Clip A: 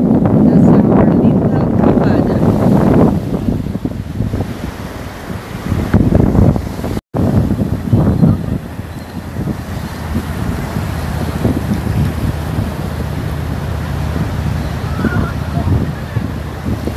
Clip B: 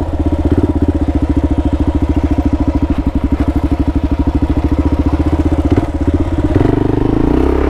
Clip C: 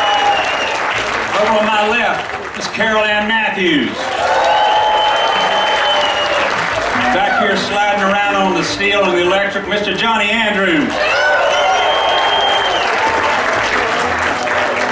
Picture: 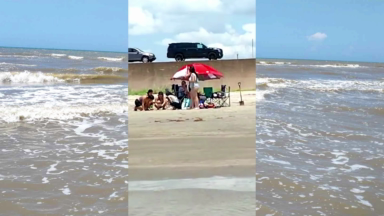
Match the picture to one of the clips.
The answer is A